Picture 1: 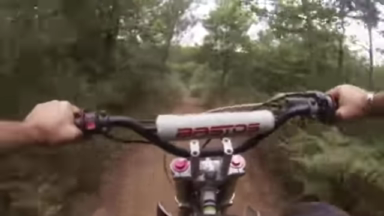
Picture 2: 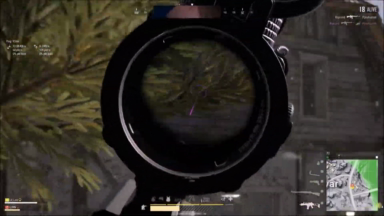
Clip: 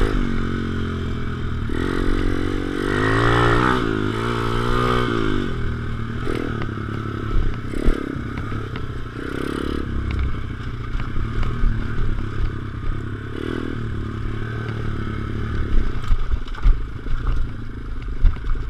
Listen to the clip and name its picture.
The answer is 1